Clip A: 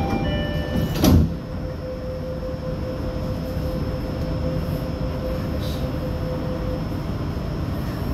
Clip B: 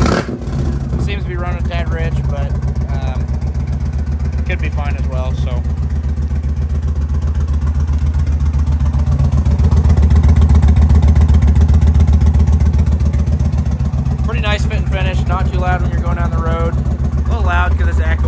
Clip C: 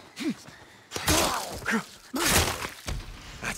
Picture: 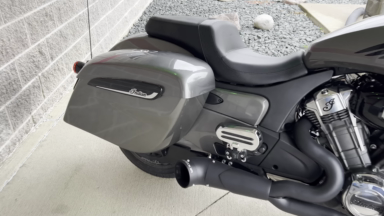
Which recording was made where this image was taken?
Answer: B